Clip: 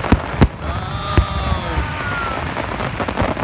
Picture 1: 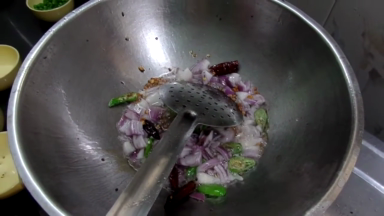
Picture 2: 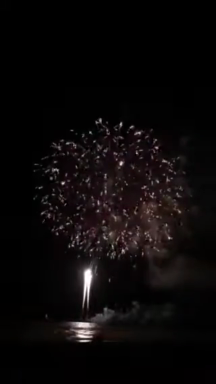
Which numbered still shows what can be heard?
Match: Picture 2